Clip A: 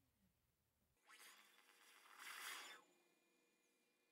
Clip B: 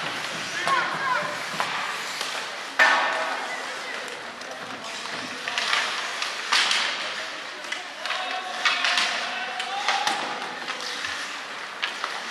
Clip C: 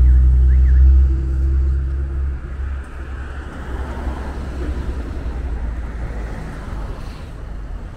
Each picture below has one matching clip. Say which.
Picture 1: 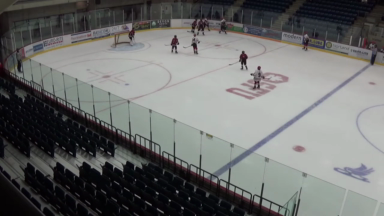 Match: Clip B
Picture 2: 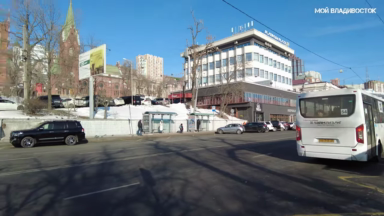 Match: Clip C